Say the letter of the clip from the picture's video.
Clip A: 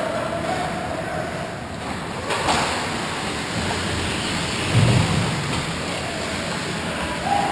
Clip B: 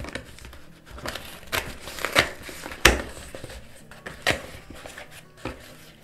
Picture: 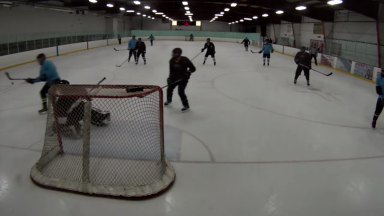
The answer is A